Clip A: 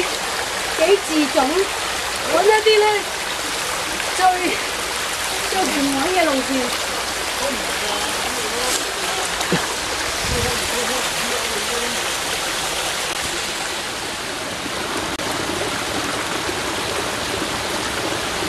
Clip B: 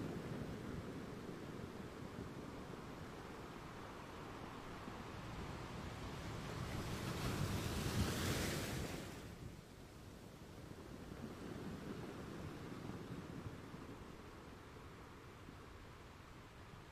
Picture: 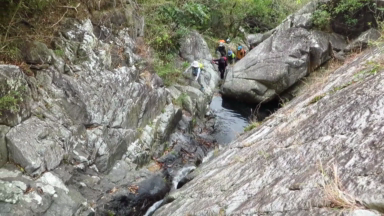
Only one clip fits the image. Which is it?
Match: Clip A